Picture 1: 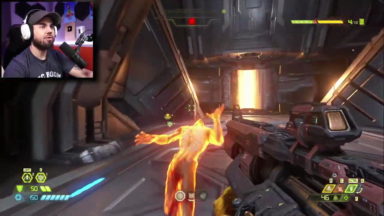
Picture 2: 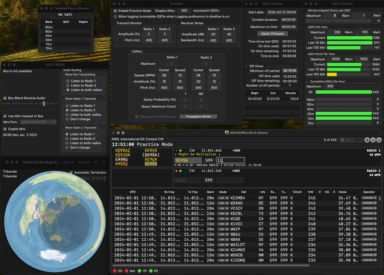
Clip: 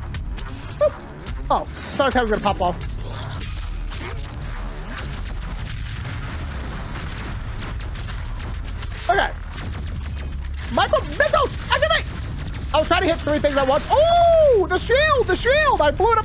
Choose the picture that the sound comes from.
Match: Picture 1